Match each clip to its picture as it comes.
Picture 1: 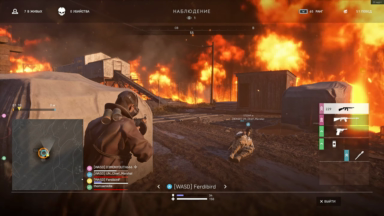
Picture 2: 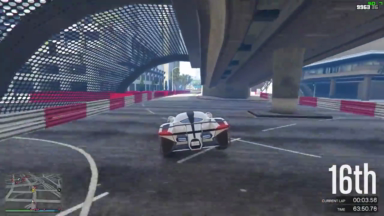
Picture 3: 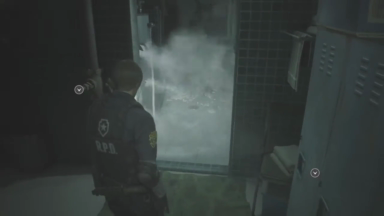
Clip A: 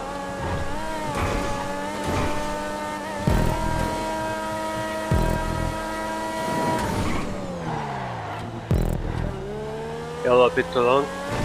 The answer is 2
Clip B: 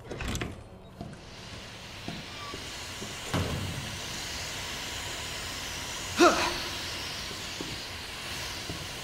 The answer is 3